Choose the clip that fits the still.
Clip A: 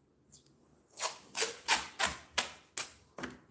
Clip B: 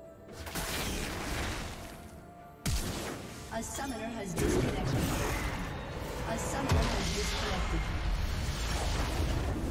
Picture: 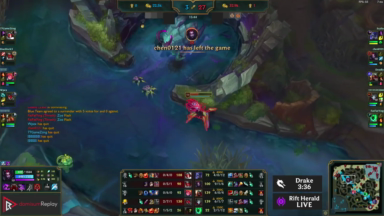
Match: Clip B